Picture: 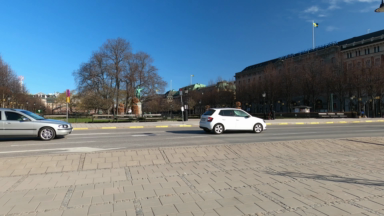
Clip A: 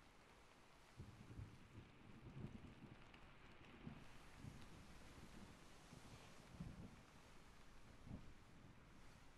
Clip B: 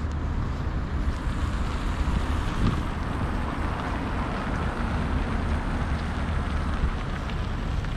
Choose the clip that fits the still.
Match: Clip B